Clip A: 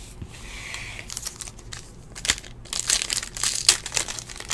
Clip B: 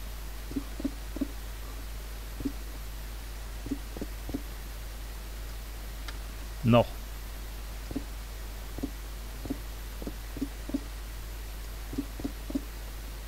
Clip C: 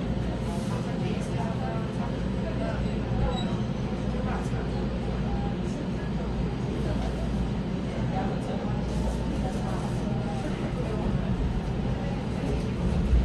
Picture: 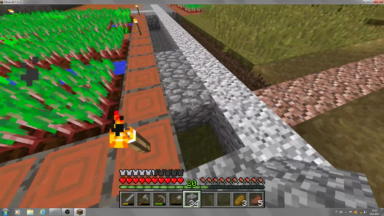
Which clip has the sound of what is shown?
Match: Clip B